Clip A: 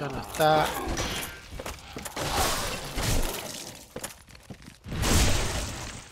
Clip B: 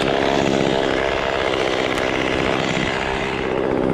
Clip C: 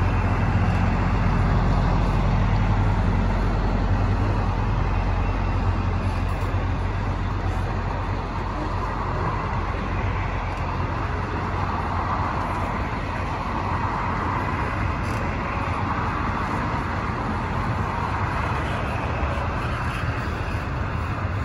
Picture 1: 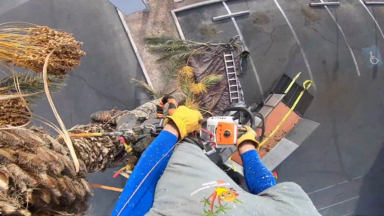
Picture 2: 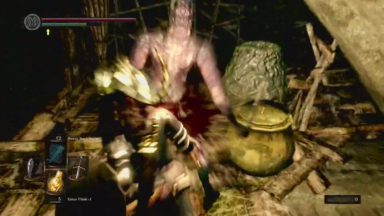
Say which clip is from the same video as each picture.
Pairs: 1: B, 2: A